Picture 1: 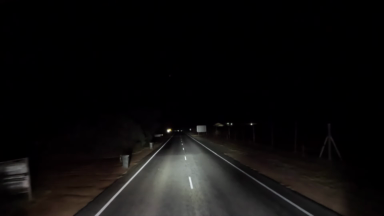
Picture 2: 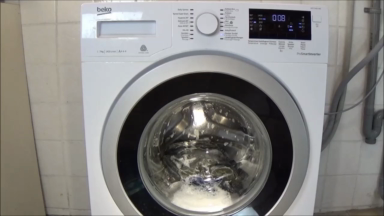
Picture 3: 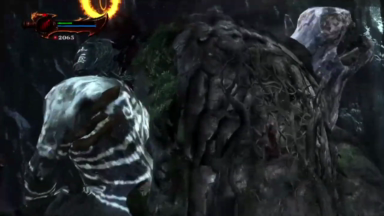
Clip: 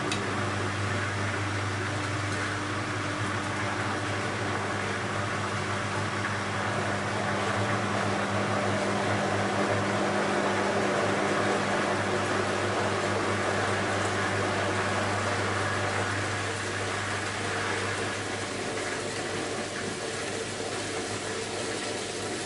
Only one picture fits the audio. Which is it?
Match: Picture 2